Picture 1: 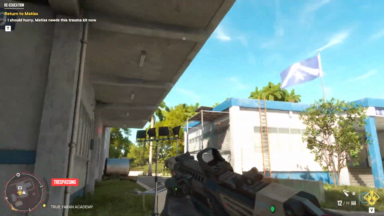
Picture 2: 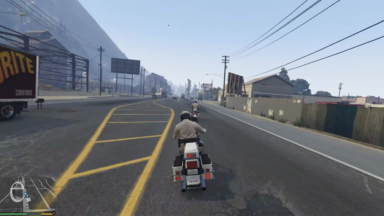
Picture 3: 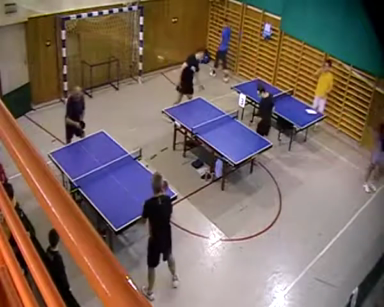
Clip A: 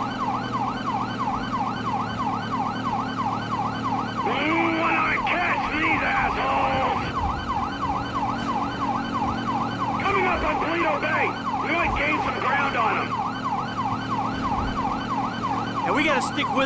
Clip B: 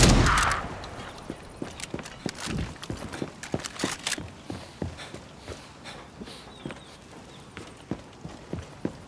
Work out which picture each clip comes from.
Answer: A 2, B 1